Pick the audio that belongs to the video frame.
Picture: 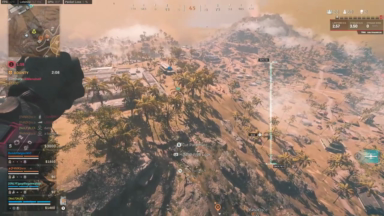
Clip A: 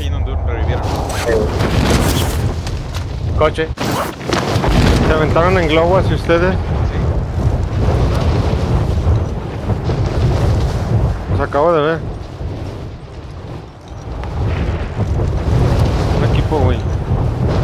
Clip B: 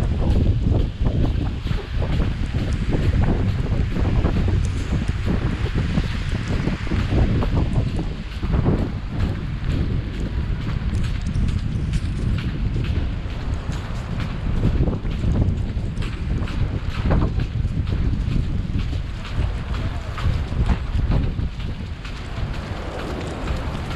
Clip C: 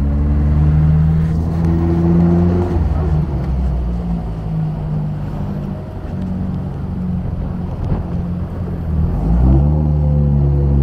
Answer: A